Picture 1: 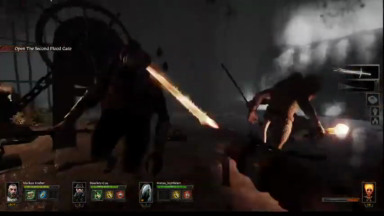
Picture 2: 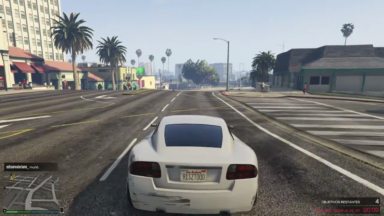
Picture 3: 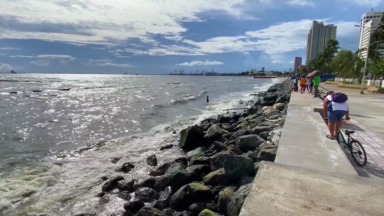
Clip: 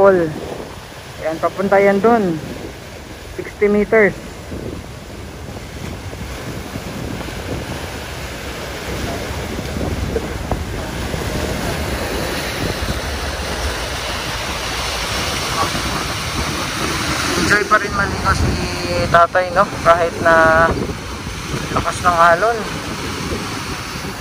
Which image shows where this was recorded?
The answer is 3